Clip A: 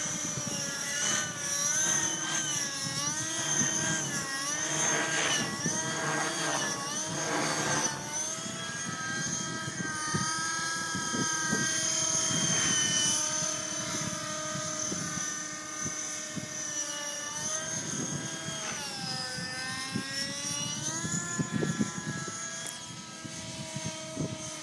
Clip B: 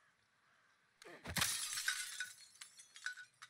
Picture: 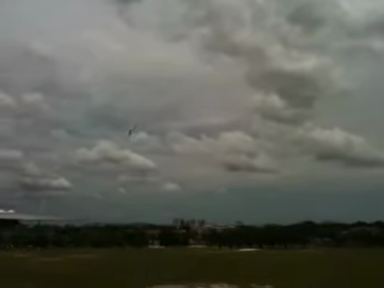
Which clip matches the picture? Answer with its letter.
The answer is A